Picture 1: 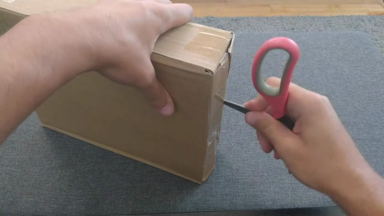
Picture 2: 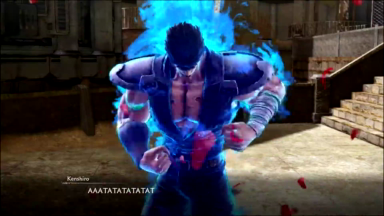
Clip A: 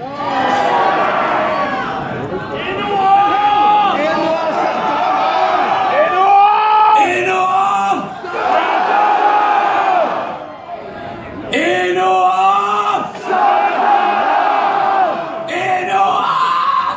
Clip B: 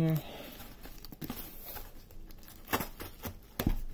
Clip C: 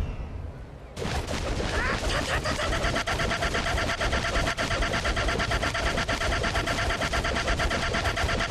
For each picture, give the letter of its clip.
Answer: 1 B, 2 C